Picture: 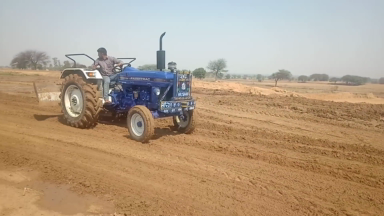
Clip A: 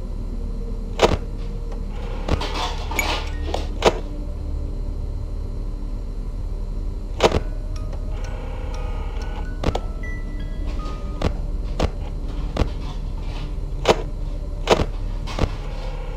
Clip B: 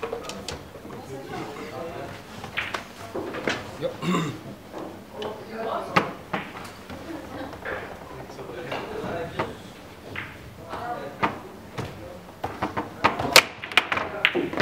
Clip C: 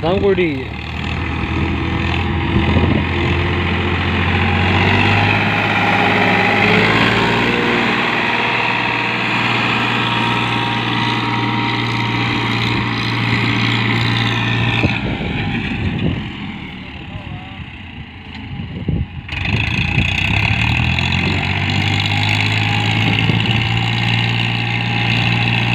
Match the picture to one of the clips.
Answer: C